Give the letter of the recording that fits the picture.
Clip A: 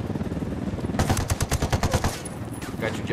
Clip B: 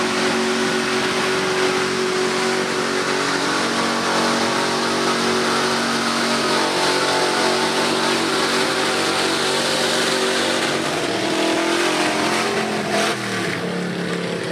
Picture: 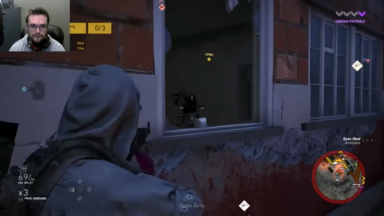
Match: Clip A